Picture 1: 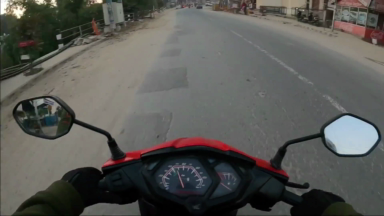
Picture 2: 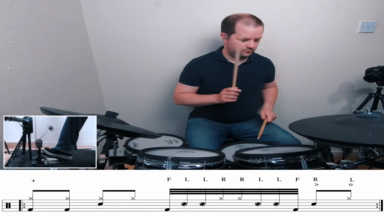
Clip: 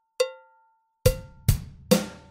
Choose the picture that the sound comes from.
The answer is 2